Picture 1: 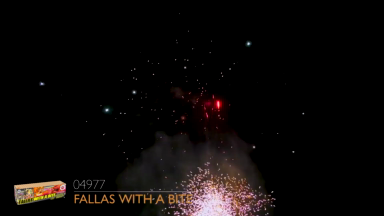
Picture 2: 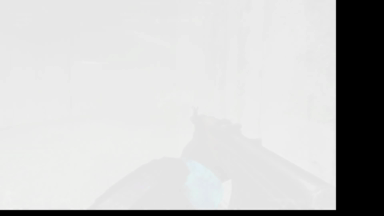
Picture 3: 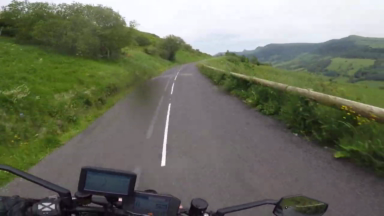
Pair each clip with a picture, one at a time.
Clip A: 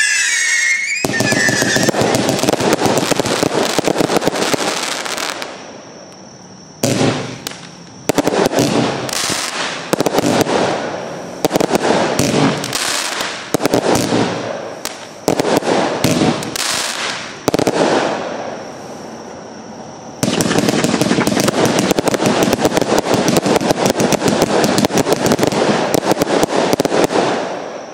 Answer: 1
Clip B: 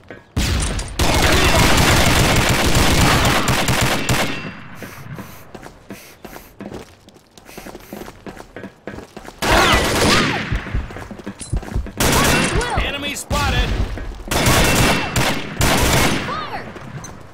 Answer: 2